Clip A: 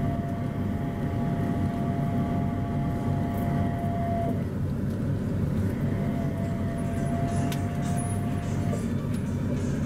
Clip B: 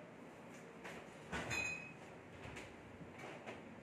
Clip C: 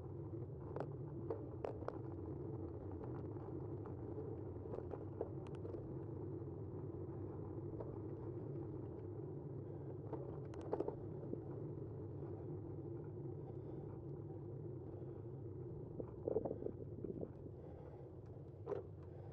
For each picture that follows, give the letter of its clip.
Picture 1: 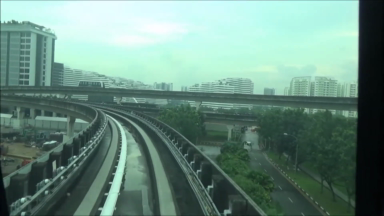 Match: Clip A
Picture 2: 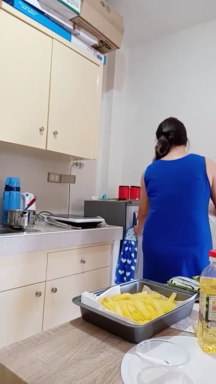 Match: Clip B